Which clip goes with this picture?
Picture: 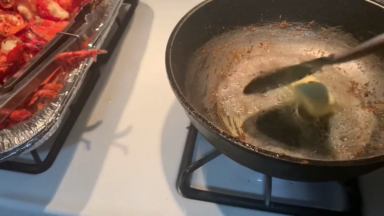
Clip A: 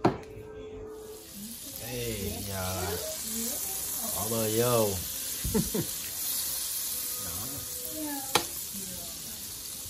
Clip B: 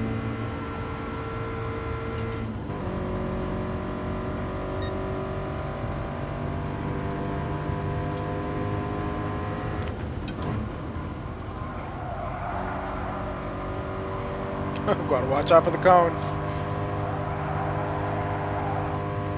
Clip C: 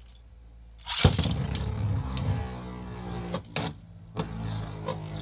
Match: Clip A